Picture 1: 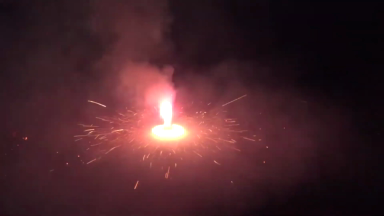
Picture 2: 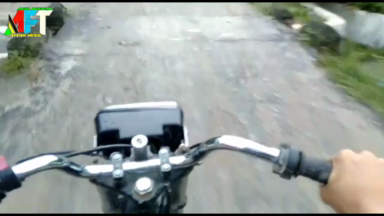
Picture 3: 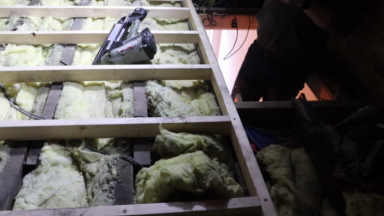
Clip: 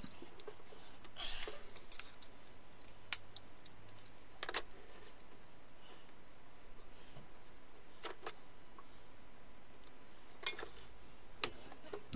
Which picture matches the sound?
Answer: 3